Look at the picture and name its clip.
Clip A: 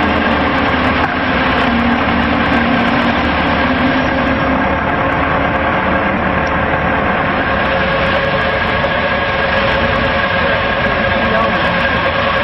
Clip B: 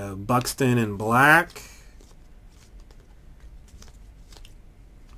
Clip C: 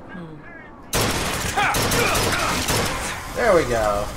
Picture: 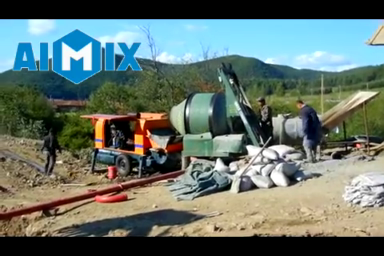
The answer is A